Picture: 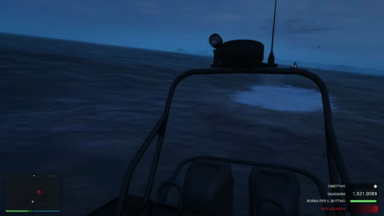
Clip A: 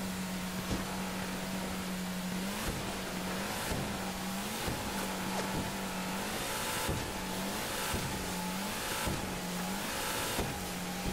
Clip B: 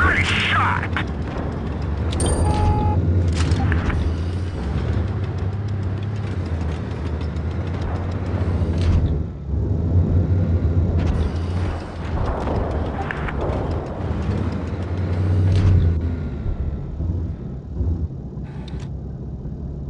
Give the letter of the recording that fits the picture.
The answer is A